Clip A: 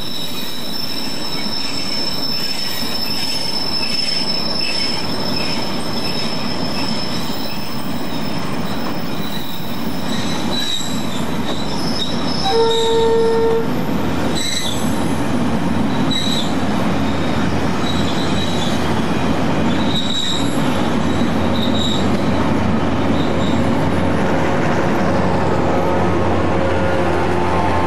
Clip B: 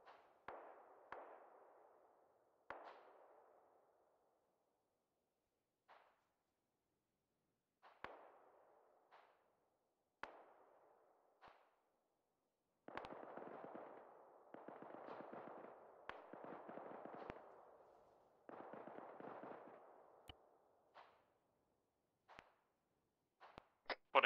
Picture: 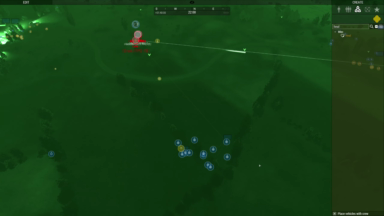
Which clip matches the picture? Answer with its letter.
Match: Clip B